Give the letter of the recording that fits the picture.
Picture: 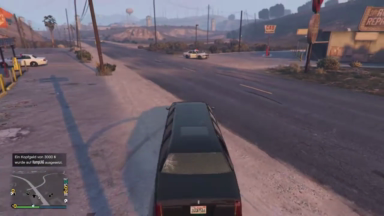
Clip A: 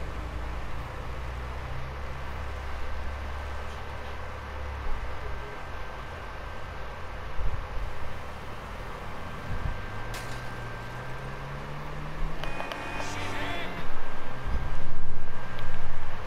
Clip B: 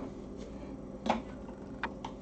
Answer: A